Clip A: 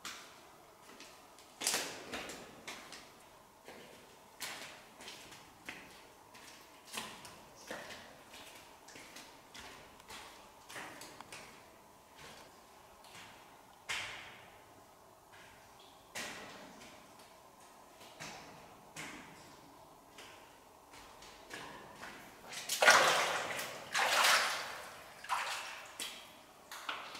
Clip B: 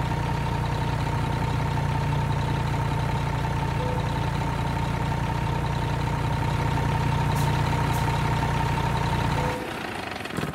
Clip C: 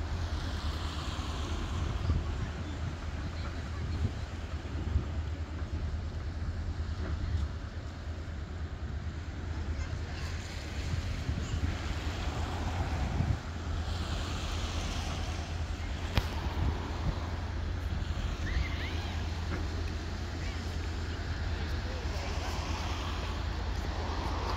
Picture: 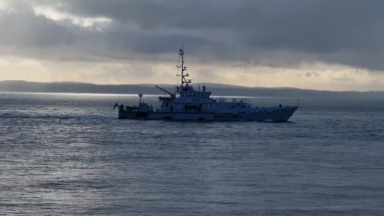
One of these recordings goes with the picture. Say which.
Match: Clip C